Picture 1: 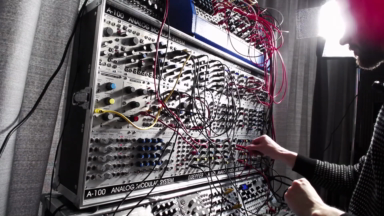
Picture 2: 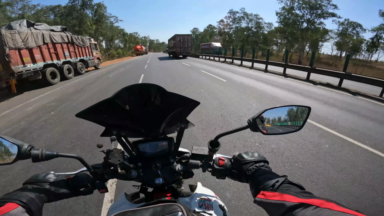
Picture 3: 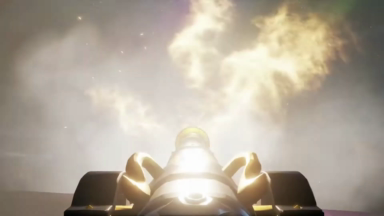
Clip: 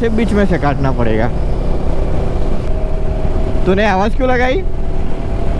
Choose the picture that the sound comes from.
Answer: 2